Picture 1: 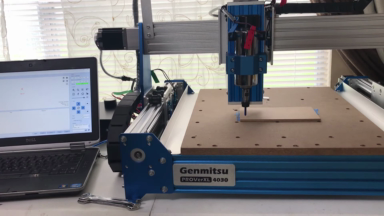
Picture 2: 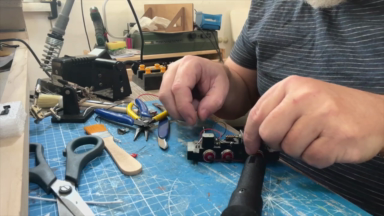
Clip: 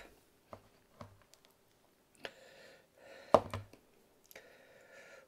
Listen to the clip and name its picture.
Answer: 2